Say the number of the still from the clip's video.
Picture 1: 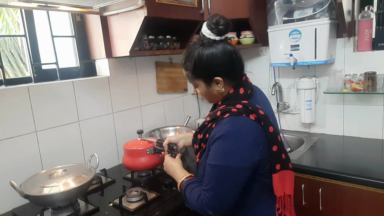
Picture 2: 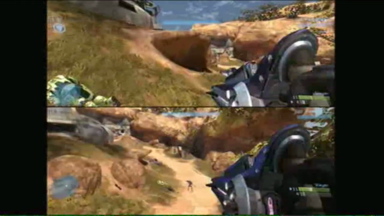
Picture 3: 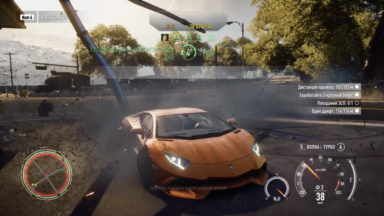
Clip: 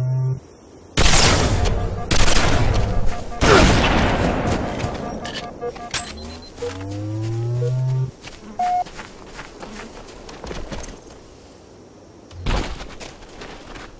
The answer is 2